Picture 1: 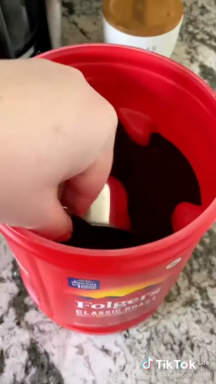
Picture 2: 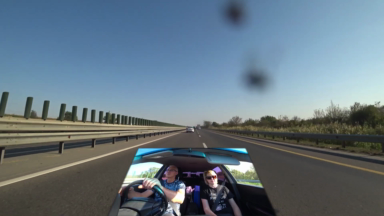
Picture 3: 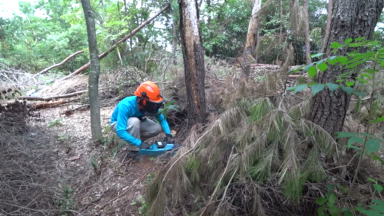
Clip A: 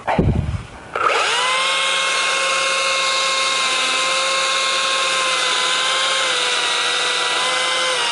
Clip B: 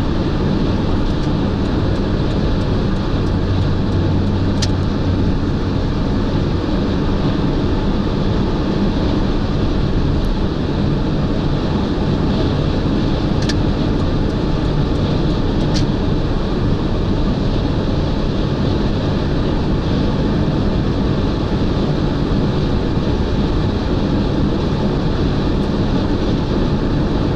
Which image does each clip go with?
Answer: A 3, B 2